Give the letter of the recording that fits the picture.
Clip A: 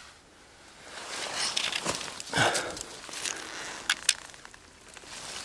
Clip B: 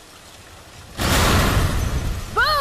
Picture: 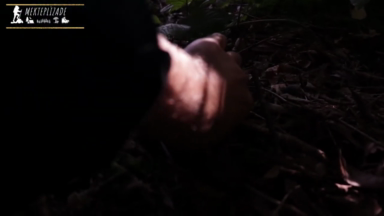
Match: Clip A